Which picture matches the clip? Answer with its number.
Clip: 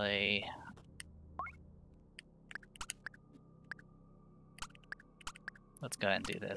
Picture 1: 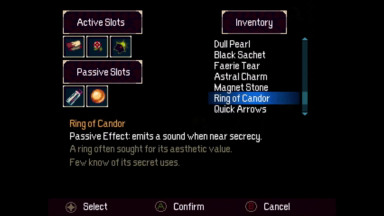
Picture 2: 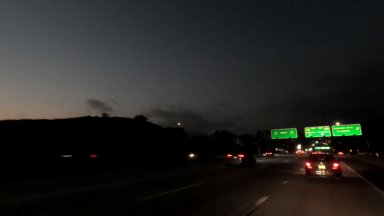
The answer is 1